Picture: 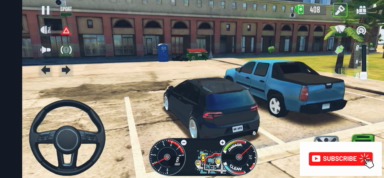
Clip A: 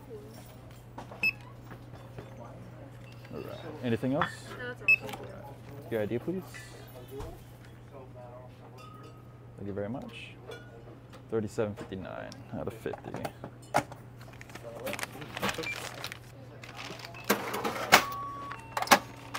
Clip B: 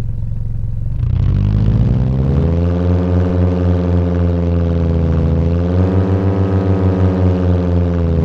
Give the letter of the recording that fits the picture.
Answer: B